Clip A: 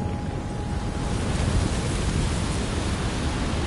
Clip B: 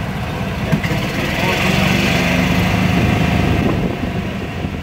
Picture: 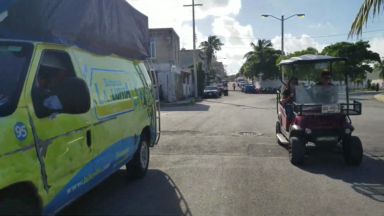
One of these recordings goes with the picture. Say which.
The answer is B